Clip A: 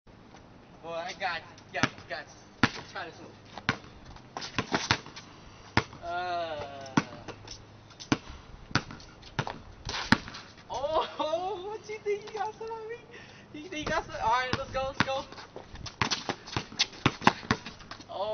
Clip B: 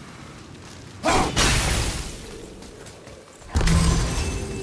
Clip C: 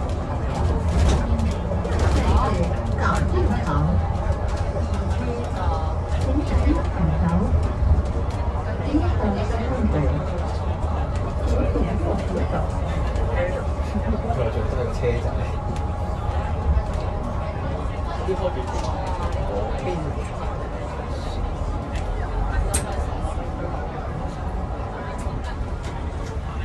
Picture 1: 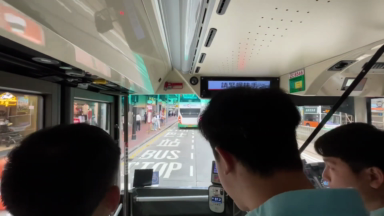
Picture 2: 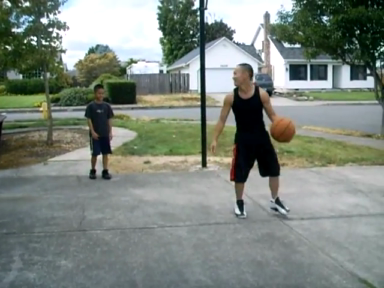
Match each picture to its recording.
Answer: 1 C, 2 A